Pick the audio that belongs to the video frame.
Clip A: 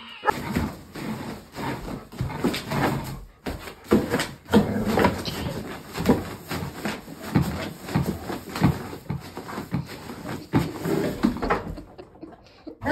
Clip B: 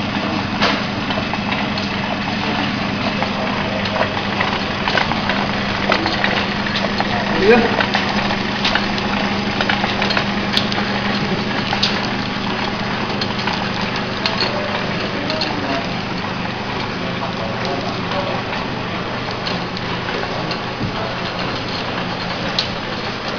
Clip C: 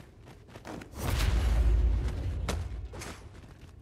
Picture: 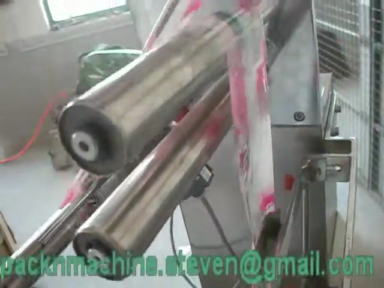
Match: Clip B